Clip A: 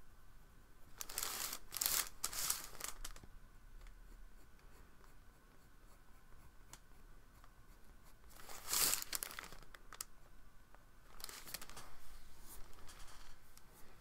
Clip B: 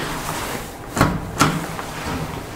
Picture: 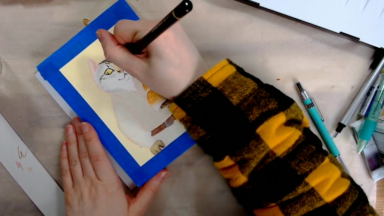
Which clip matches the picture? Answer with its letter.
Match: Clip A